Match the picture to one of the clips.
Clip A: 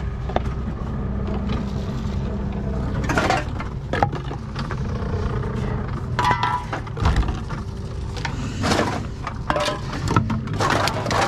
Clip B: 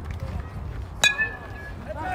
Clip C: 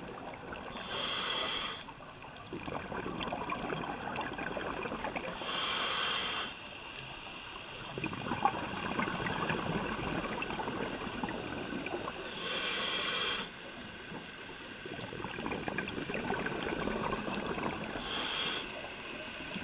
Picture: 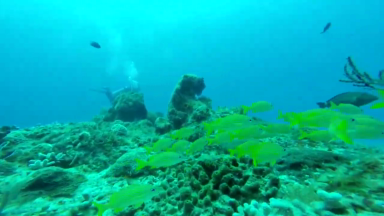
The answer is C